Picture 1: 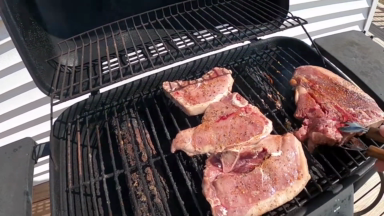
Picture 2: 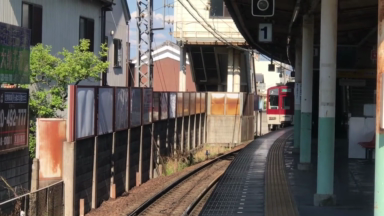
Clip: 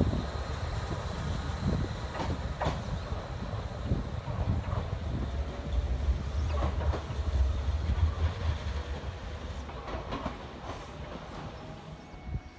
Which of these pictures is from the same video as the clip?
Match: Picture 2